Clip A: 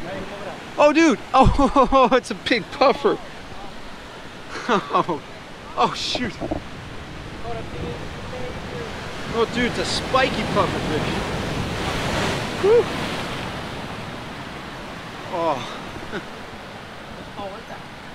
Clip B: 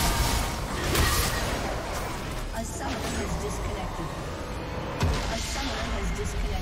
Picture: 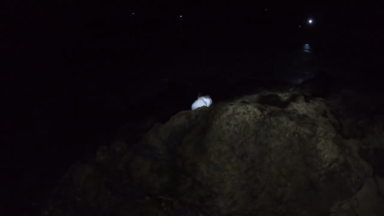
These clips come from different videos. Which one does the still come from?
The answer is A